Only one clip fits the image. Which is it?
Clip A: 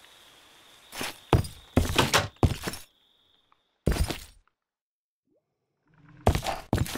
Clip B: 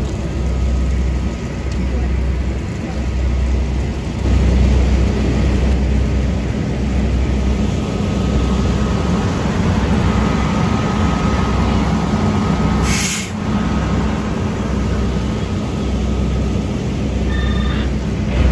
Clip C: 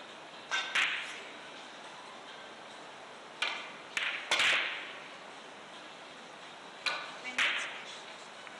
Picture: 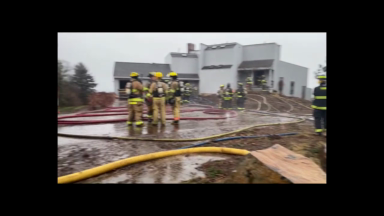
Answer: B